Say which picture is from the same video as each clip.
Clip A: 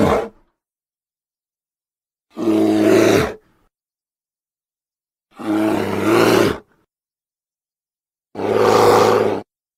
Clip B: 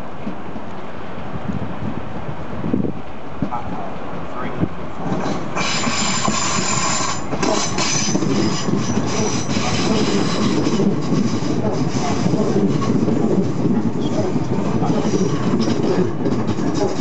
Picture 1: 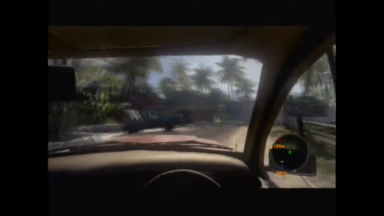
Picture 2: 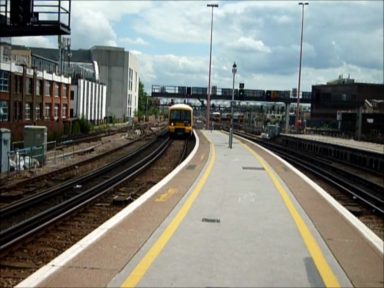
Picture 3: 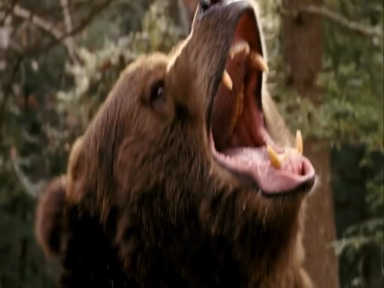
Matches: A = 3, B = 2